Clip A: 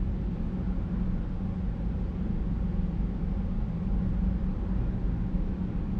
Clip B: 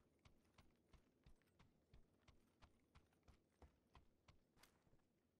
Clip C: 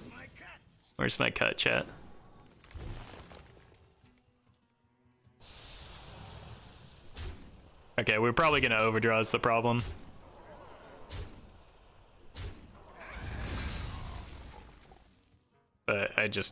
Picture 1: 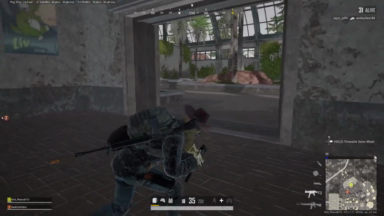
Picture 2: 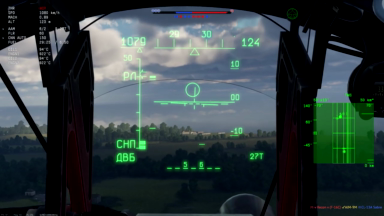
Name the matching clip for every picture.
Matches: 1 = B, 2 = A